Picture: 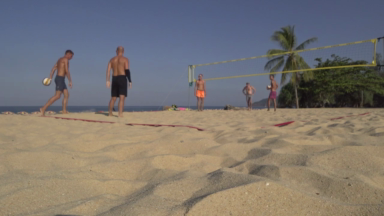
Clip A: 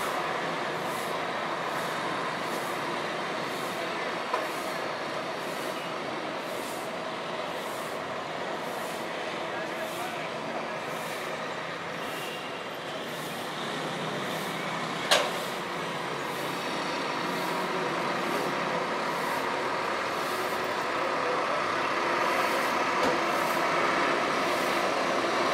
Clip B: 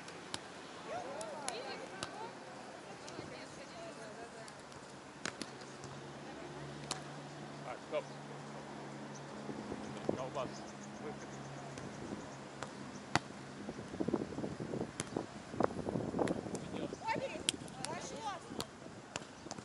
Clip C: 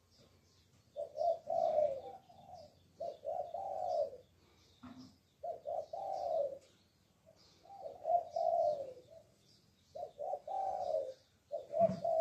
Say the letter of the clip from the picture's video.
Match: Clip B